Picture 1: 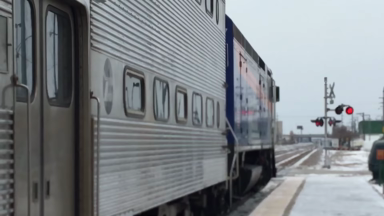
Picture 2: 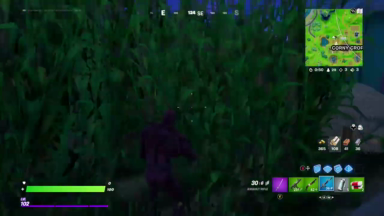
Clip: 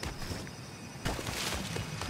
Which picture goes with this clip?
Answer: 2